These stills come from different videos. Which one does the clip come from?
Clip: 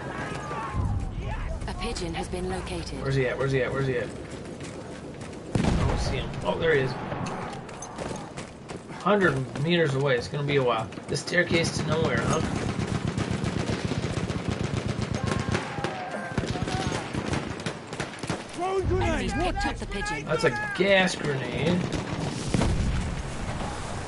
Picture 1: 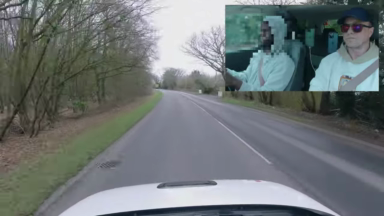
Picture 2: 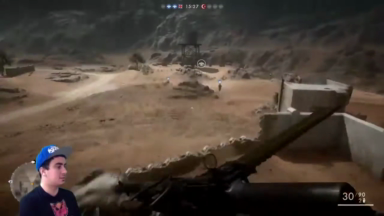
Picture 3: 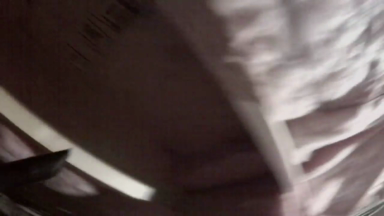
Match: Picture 2